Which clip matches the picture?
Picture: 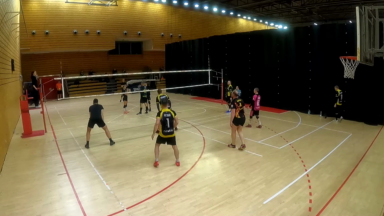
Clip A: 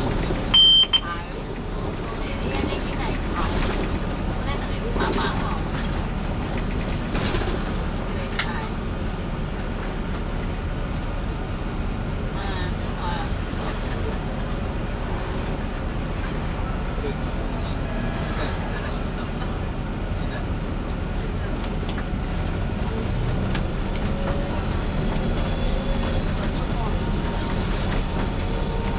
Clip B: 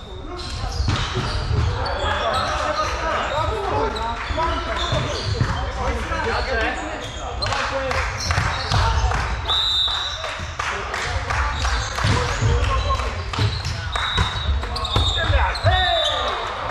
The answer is B